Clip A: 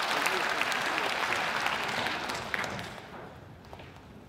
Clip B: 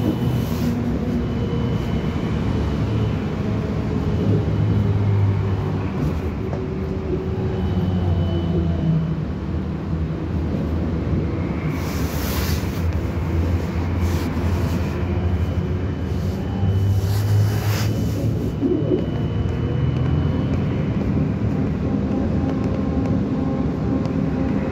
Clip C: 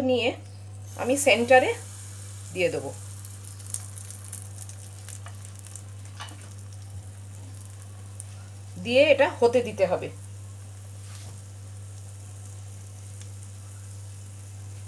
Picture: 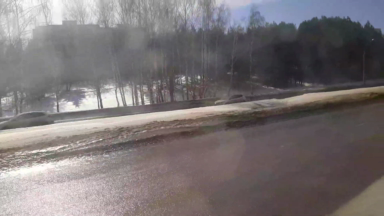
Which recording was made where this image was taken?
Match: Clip B